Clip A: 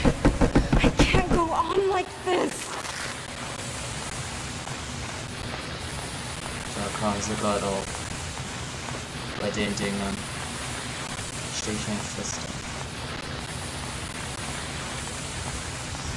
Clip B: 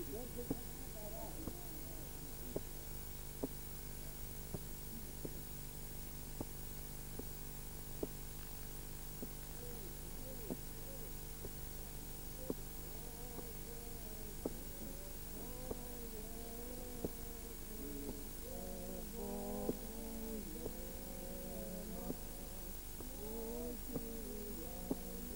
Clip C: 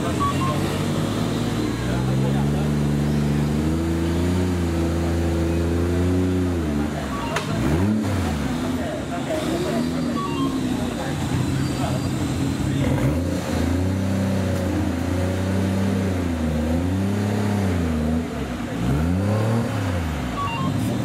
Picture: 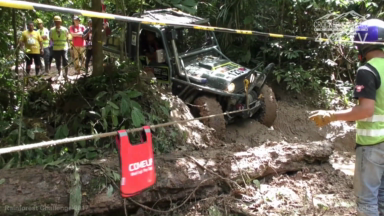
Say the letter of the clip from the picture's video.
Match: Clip C